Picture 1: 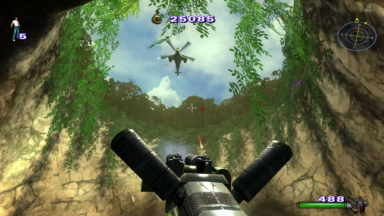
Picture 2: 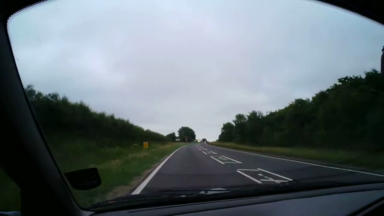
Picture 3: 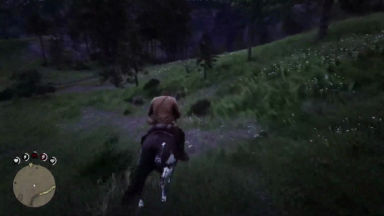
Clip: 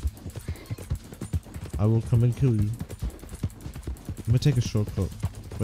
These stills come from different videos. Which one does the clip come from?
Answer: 3